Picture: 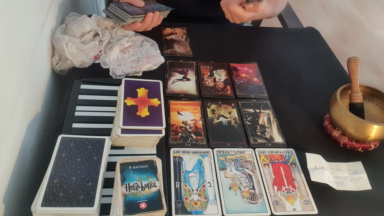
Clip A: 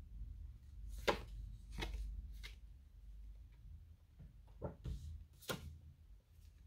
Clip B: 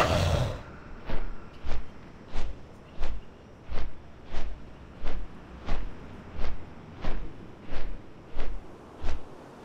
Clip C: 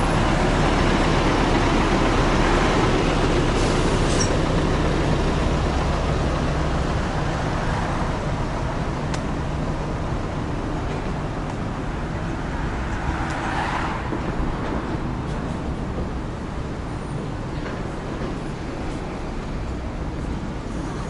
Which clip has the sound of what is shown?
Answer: A